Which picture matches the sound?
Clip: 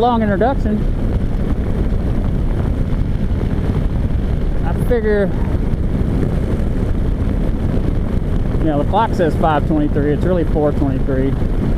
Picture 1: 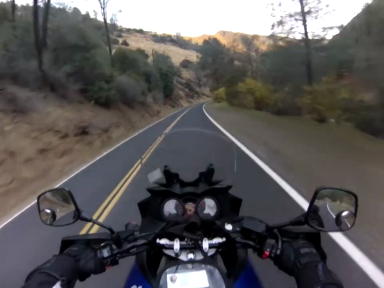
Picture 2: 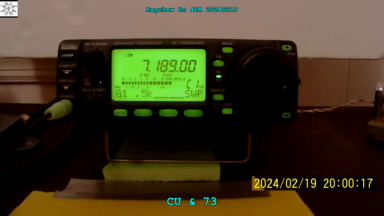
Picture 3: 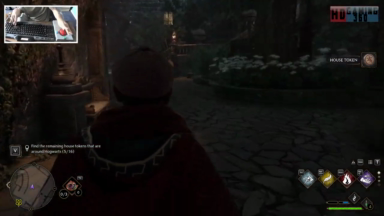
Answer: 1